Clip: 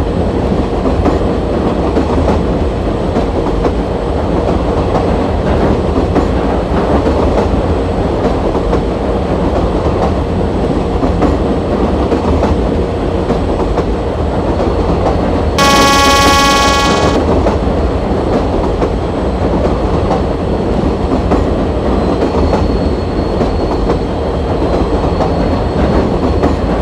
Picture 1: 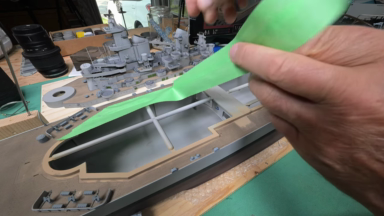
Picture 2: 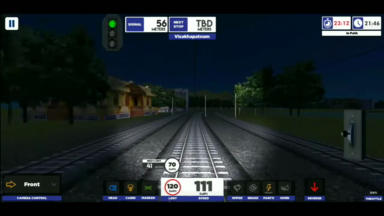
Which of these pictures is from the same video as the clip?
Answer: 2